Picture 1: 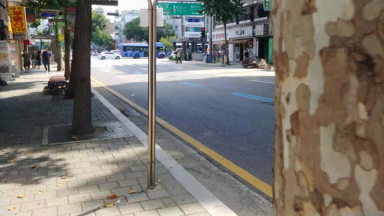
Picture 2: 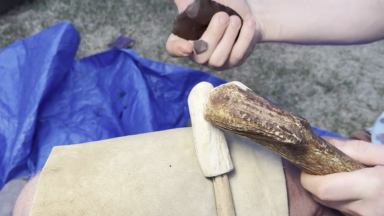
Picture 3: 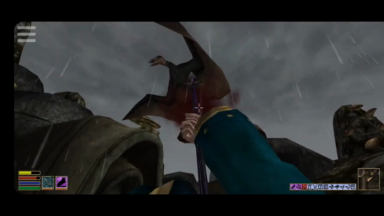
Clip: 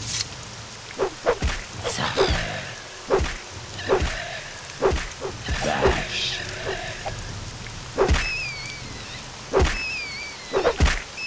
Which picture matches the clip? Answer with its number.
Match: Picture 3